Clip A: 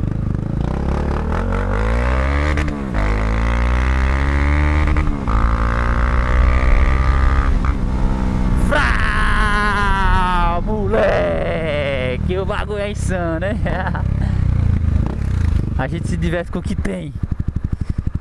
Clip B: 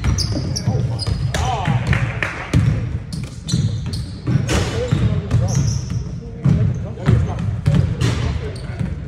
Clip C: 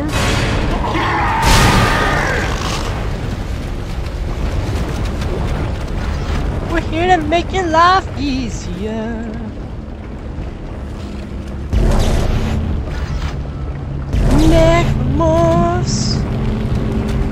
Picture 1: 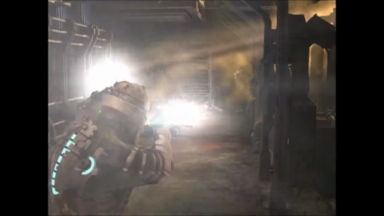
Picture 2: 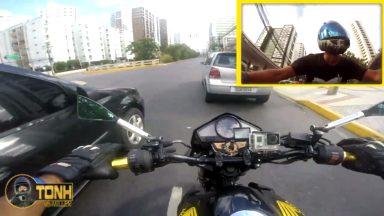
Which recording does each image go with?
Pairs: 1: C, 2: A